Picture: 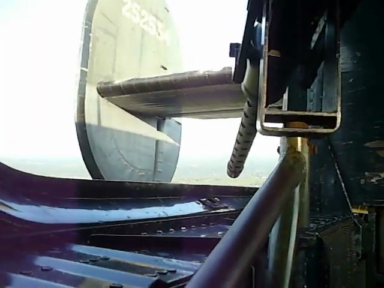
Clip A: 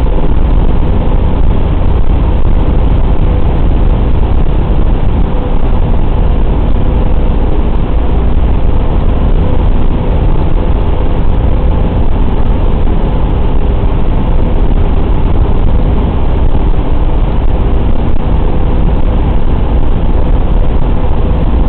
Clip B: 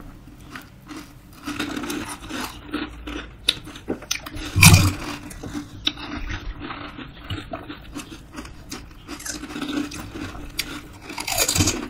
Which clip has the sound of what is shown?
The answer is A